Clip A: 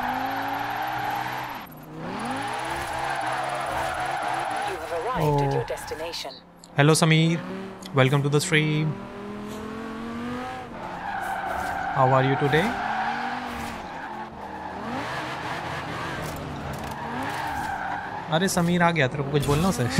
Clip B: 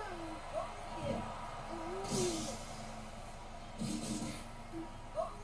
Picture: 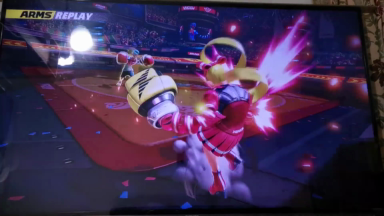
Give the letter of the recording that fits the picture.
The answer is B